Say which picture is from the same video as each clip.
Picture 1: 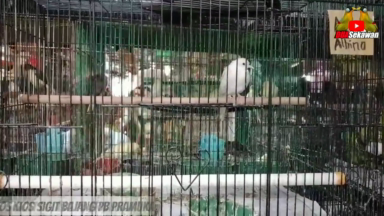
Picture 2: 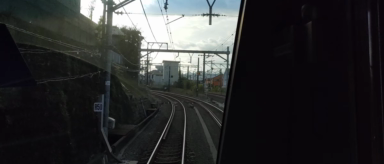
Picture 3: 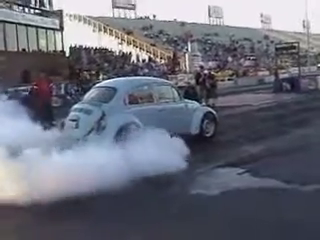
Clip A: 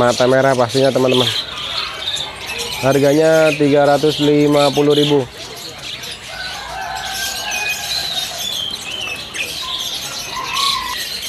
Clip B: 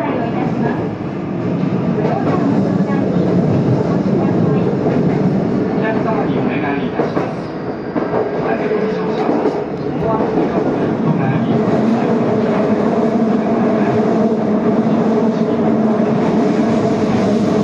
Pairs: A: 1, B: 2